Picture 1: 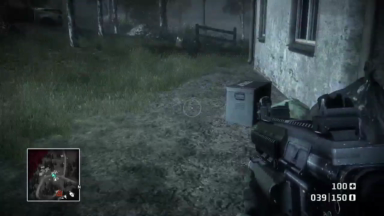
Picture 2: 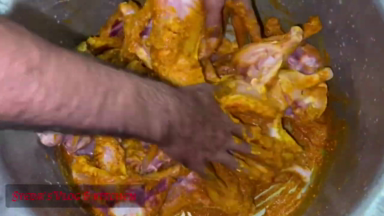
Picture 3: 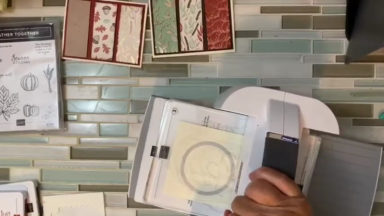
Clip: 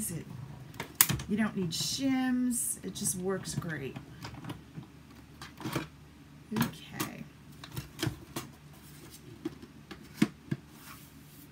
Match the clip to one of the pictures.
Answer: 3